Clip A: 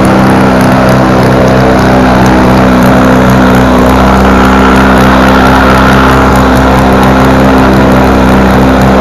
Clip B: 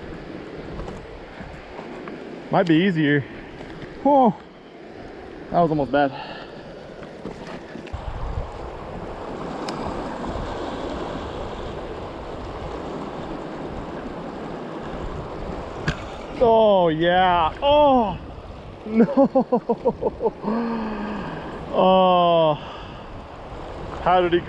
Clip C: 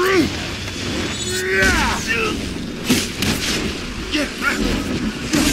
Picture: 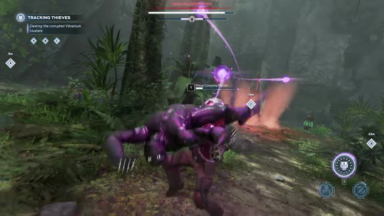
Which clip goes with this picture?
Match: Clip C